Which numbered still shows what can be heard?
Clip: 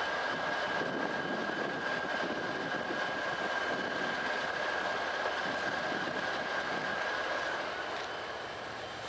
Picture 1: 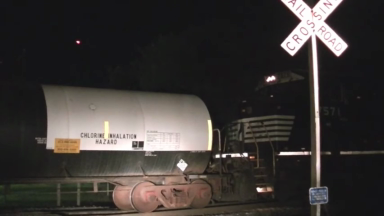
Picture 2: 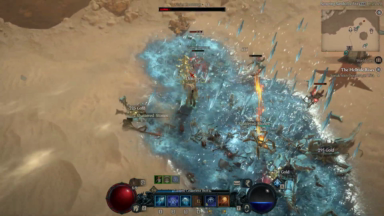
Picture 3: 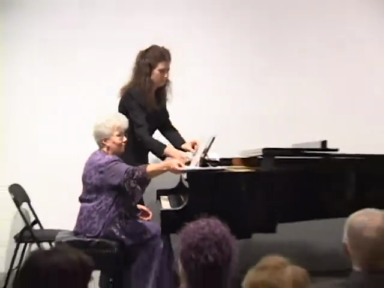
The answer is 1